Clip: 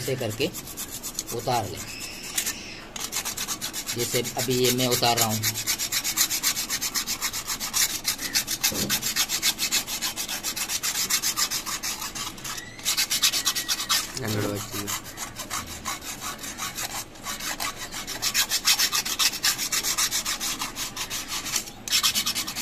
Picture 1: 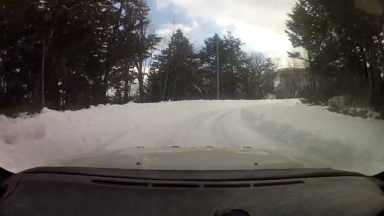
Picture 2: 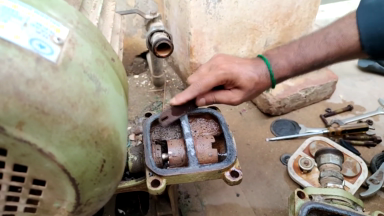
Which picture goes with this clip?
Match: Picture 2